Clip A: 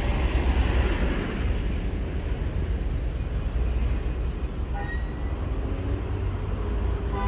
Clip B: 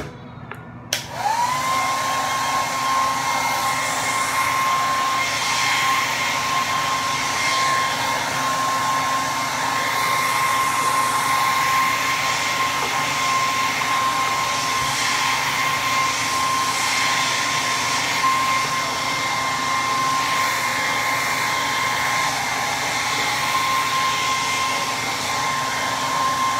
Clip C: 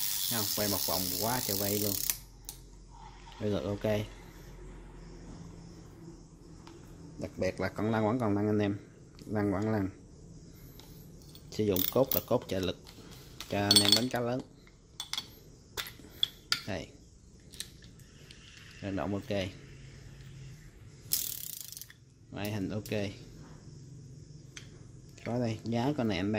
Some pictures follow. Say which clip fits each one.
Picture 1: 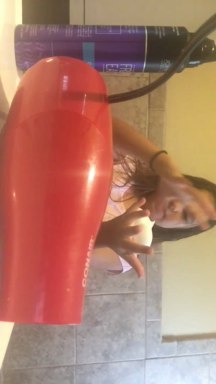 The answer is B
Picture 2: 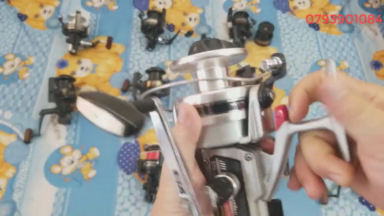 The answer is C